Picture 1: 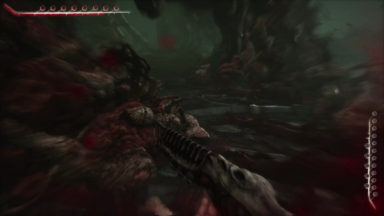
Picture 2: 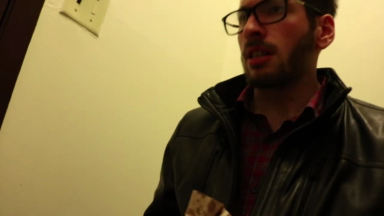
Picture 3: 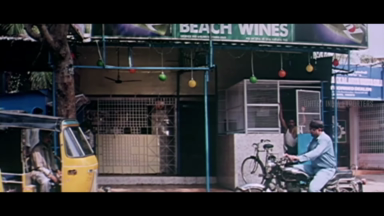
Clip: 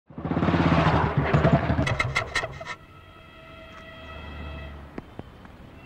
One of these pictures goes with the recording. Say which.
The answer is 3